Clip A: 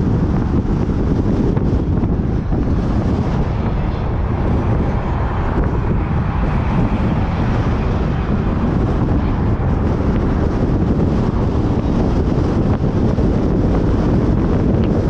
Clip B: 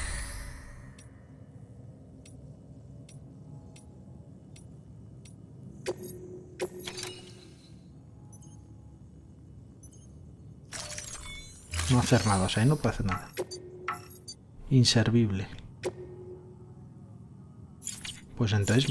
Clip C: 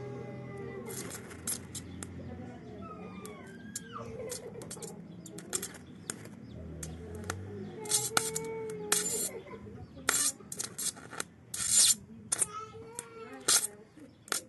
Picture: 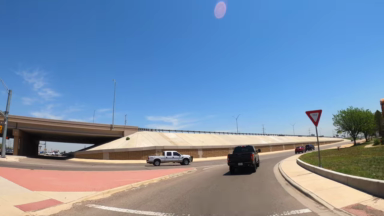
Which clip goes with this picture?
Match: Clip A